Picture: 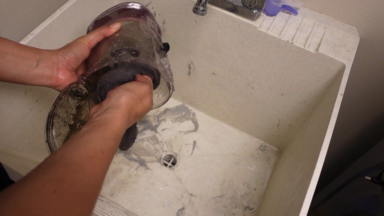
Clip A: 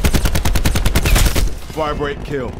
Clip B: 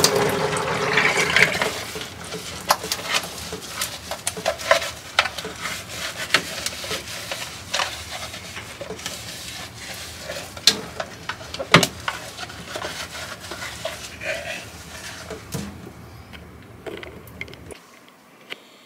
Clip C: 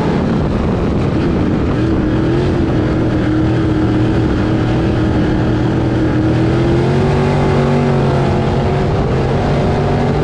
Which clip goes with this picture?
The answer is B